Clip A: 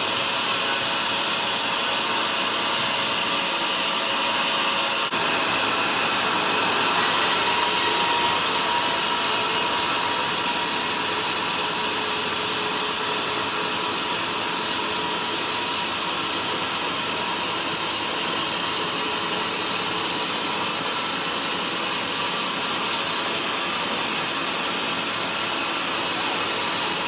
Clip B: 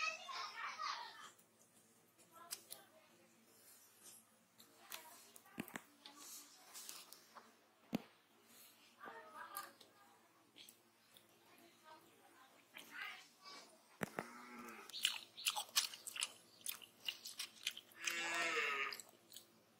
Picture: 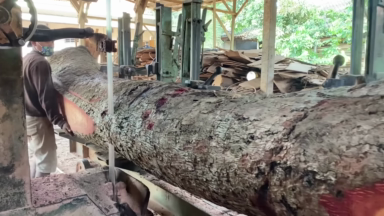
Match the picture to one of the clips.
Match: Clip A